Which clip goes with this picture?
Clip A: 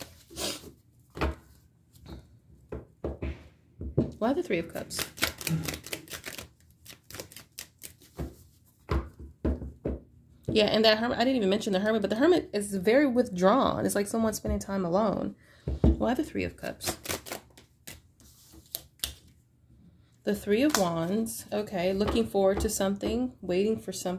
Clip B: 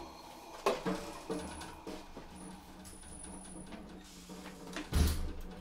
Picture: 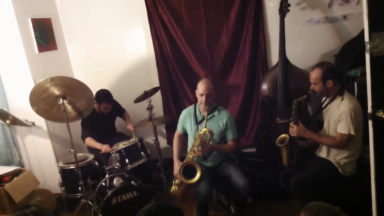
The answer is B